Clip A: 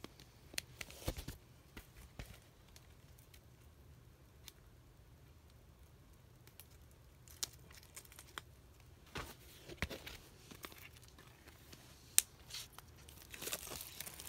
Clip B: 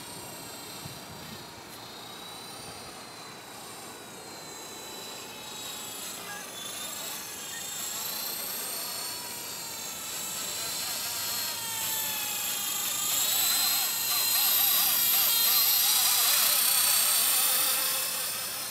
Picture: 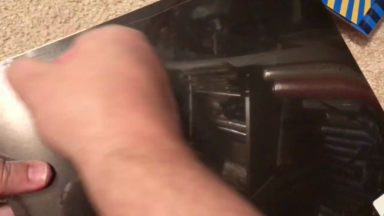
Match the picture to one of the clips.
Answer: A